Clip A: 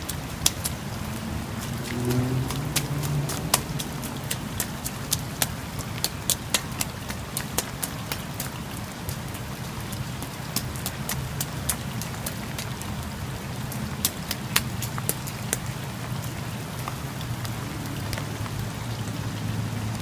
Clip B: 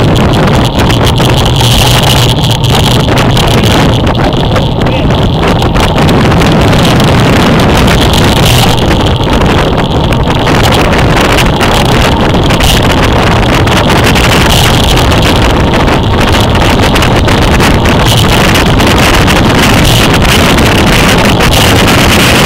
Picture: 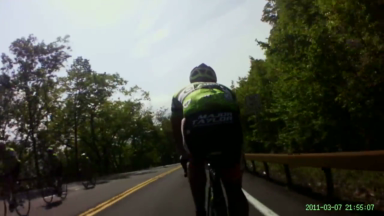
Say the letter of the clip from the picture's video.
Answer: B